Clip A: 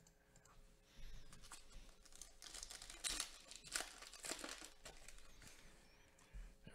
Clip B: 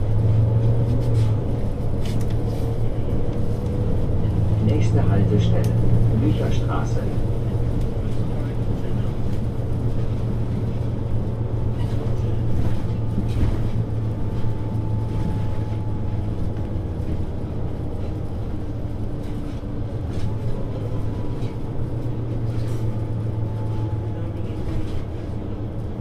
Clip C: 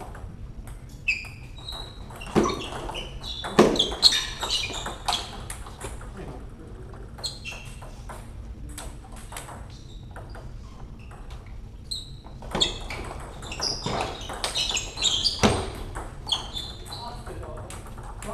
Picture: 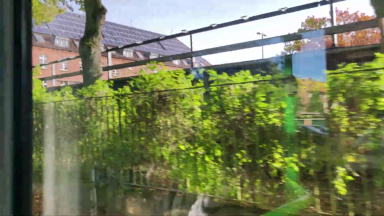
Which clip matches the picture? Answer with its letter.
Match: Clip B